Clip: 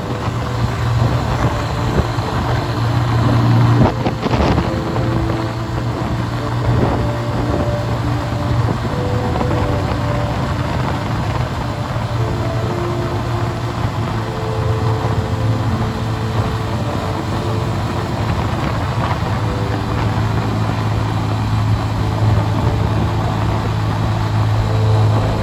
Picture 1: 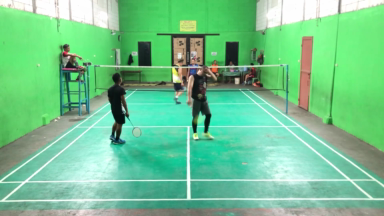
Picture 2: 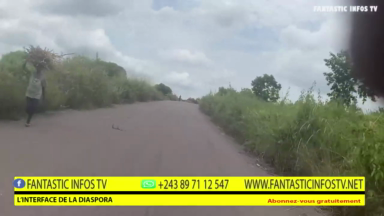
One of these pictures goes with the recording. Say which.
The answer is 2